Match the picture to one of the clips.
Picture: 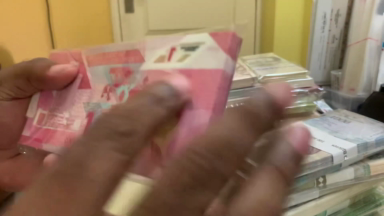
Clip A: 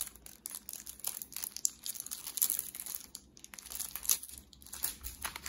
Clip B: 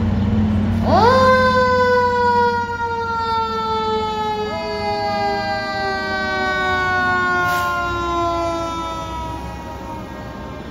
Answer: A